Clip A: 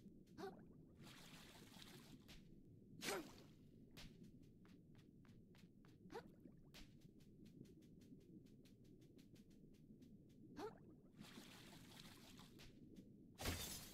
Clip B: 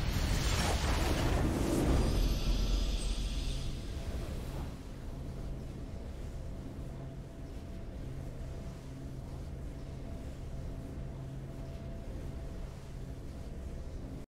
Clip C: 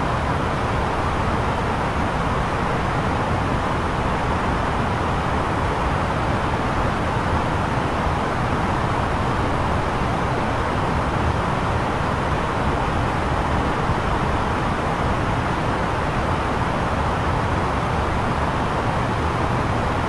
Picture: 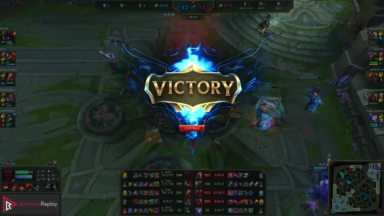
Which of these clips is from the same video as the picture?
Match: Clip B